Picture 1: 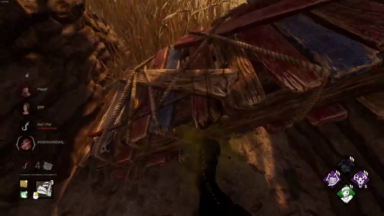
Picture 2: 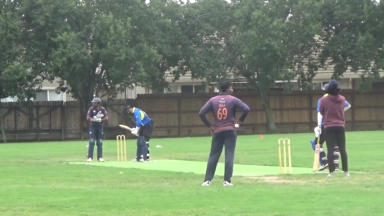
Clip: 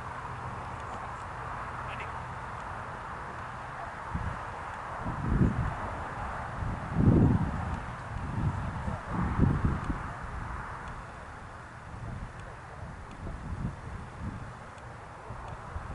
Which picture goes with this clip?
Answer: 2